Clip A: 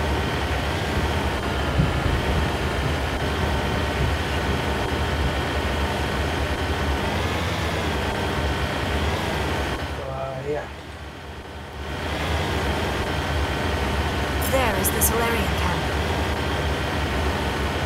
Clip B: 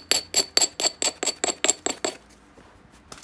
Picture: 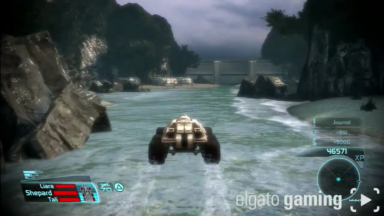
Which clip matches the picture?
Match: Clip A